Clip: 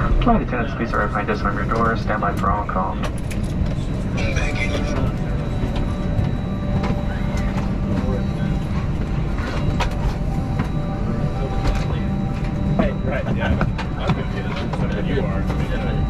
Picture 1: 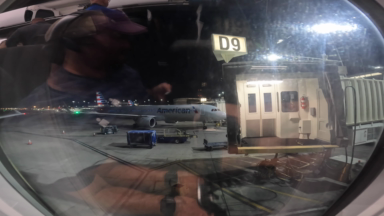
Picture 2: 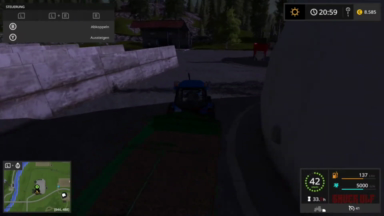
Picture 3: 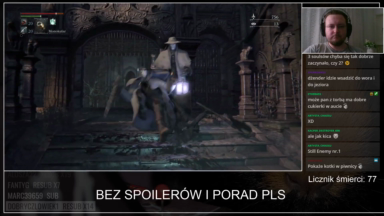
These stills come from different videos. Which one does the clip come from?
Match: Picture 1